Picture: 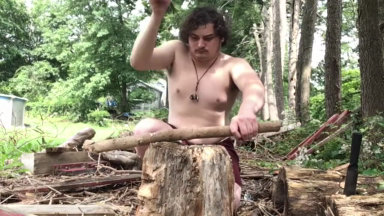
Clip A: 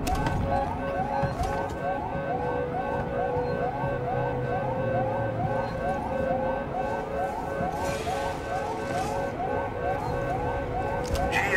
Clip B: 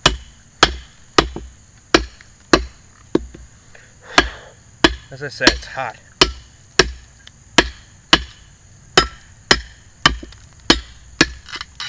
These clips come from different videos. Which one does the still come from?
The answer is B